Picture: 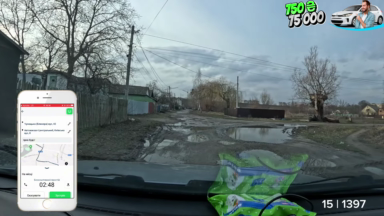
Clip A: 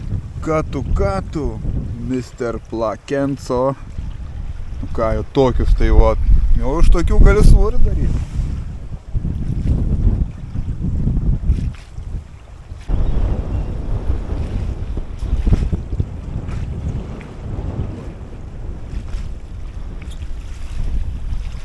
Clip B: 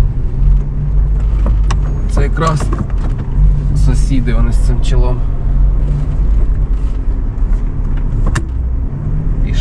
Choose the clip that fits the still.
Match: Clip B